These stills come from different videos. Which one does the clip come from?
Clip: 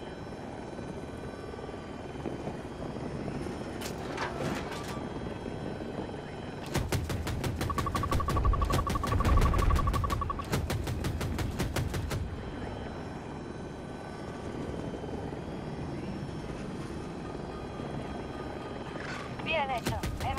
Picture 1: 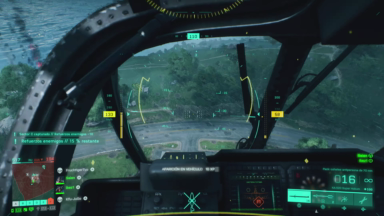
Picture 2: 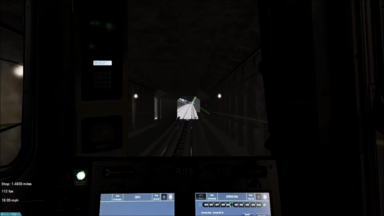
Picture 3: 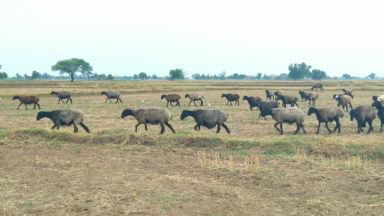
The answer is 1